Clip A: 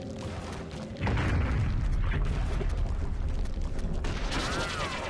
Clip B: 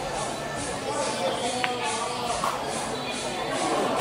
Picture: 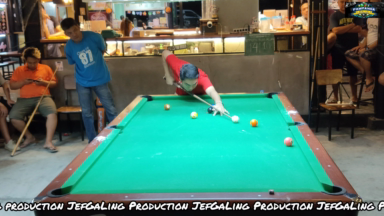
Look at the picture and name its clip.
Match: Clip B